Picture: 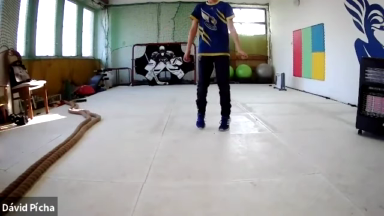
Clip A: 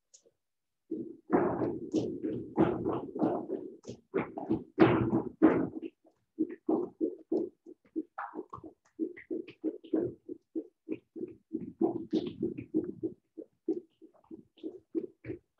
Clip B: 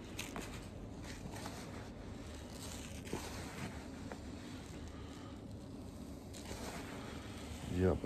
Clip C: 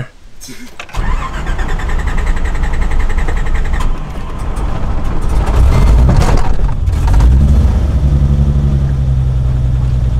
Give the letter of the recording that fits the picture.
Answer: A